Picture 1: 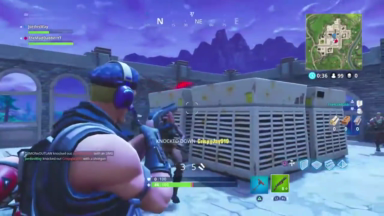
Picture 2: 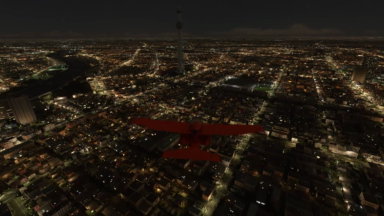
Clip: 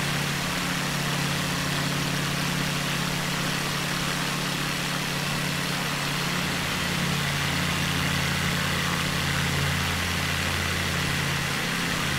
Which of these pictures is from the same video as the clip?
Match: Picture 2